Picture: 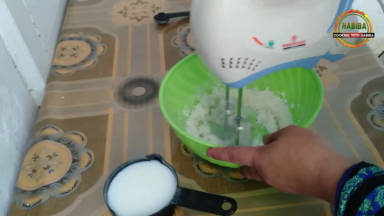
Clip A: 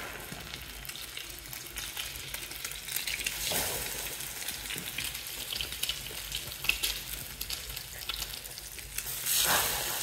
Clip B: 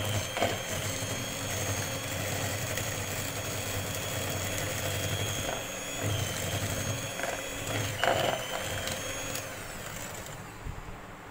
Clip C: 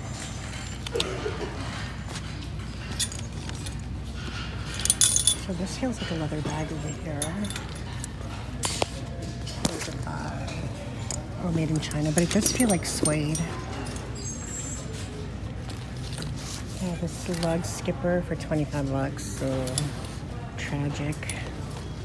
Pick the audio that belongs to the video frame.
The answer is B